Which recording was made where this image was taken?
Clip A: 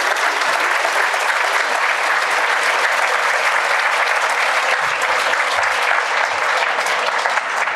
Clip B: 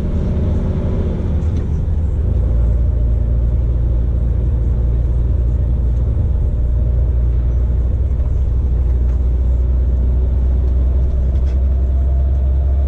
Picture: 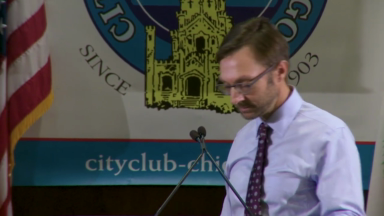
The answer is A